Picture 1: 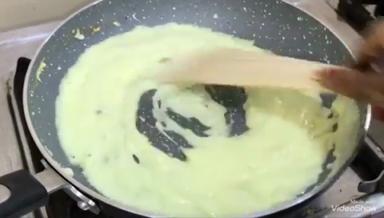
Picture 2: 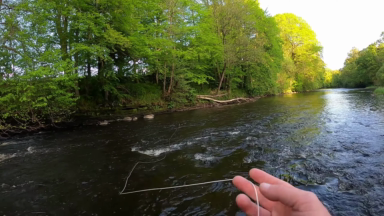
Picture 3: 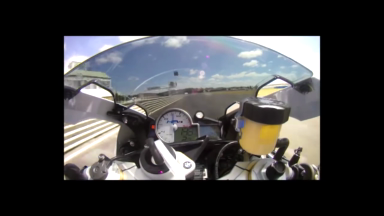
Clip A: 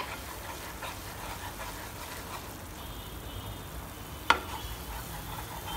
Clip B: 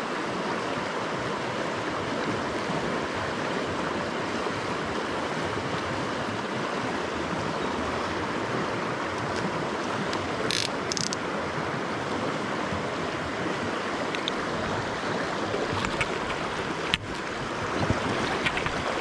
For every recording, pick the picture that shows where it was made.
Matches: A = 1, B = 2